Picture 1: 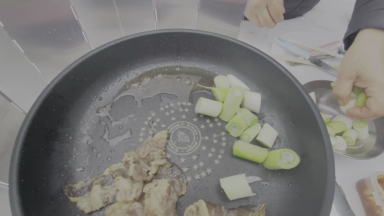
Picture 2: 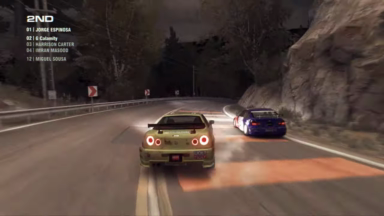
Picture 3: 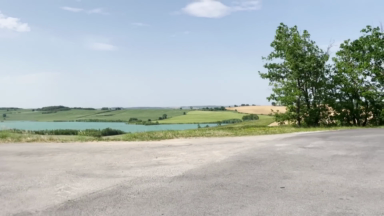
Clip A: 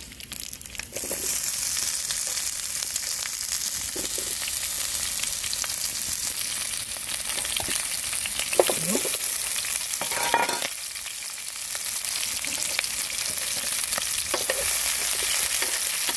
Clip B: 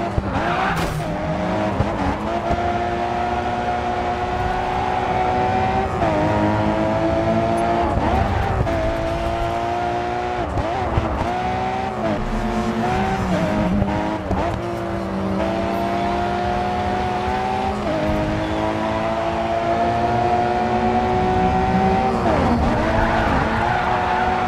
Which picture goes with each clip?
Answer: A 1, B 2